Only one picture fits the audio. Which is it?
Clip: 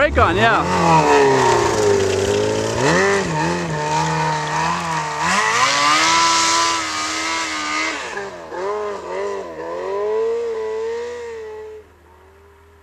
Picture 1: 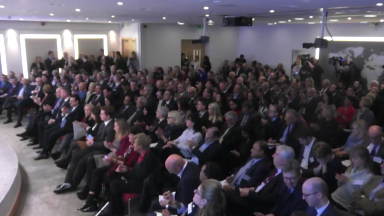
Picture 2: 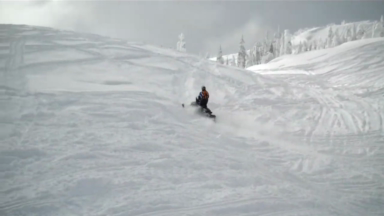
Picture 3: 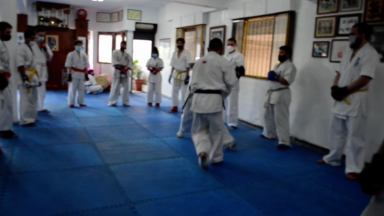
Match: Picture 2